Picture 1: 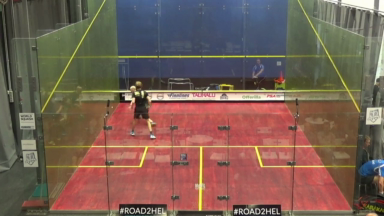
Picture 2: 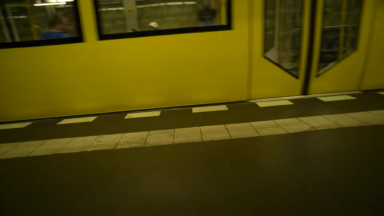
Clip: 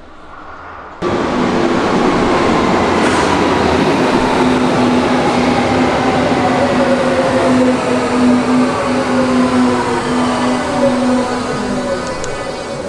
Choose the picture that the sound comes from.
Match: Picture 2